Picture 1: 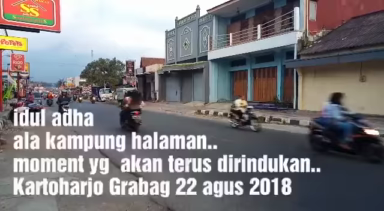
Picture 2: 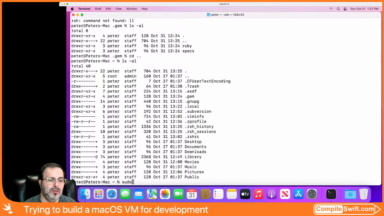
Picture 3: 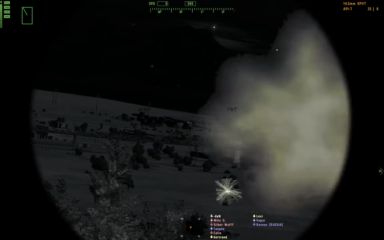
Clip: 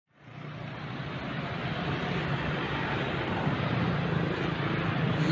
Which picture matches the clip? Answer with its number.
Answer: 1